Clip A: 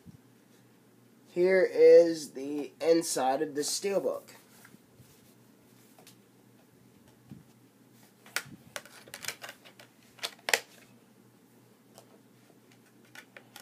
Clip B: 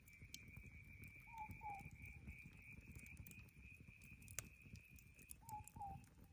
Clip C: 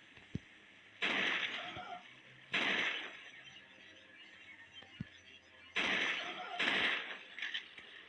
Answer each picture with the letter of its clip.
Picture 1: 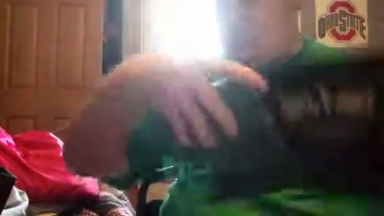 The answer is A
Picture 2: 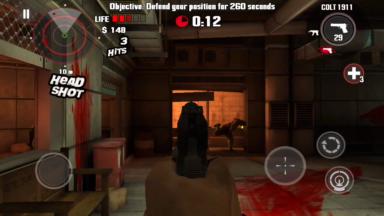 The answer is C